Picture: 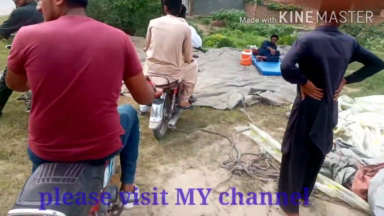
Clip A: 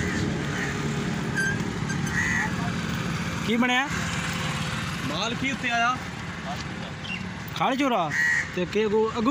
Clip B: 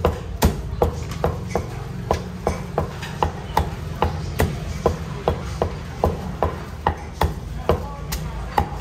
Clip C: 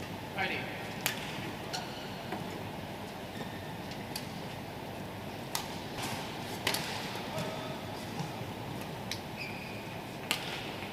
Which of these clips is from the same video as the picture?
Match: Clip A